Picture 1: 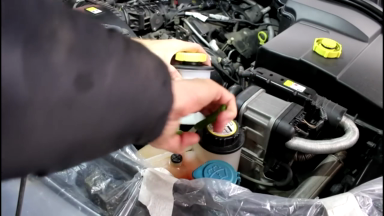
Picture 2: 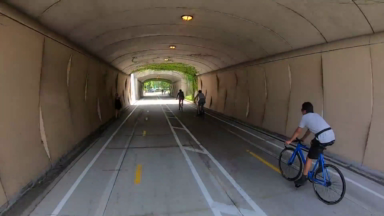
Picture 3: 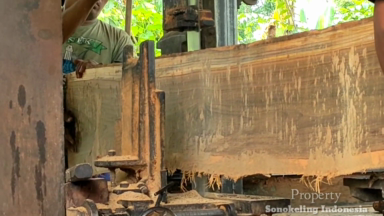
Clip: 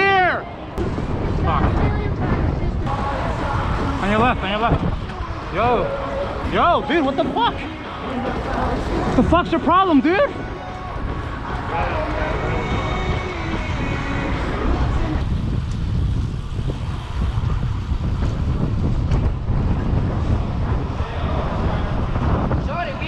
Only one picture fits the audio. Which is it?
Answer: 2